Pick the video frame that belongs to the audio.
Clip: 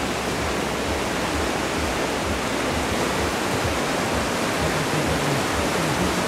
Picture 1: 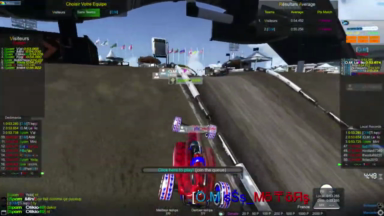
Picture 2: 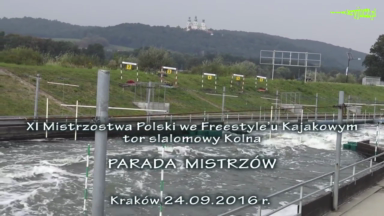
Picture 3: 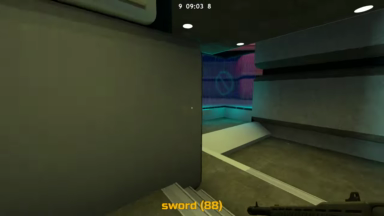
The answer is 2